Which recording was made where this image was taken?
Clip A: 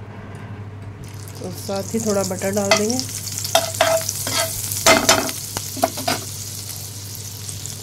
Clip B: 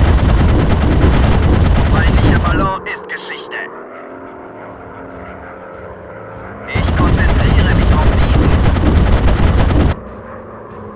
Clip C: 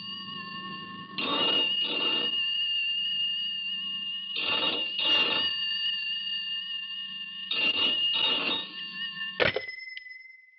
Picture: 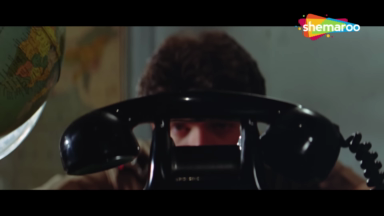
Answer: C